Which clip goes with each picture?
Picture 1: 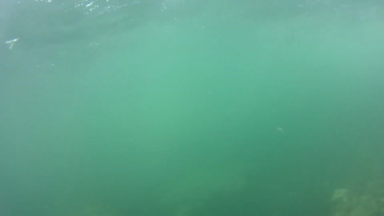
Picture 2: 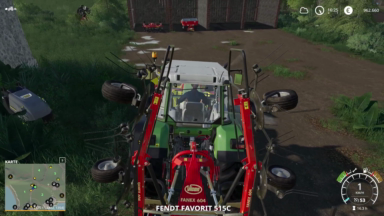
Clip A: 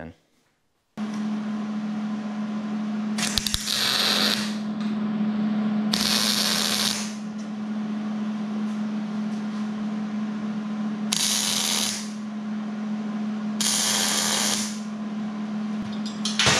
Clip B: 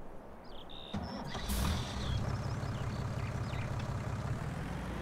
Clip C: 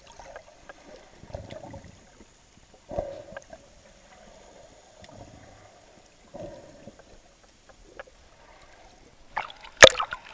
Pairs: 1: C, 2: B